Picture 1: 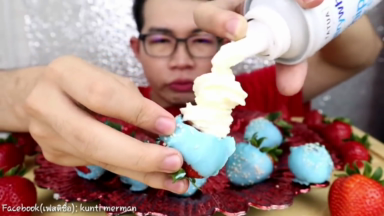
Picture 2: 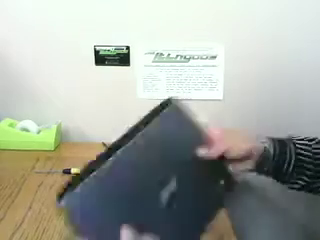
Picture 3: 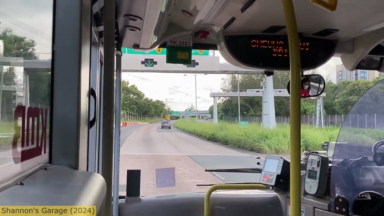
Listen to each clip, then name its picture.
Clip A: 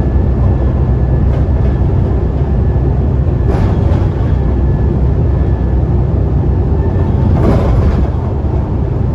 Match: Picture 3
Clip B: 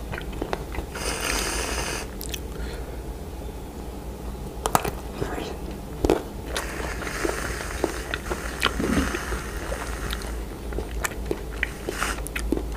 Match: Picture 1